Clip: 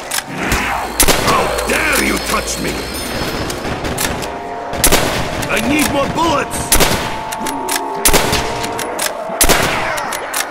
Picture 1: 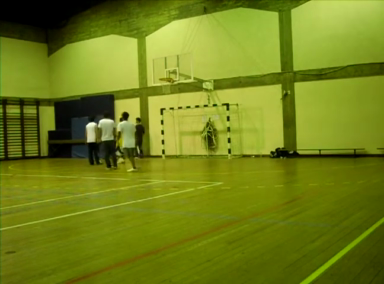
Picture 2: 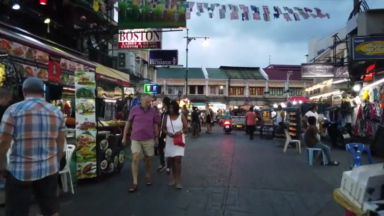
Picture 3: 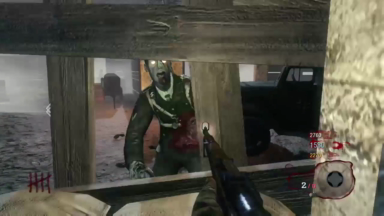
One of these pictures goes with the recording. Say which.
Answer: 3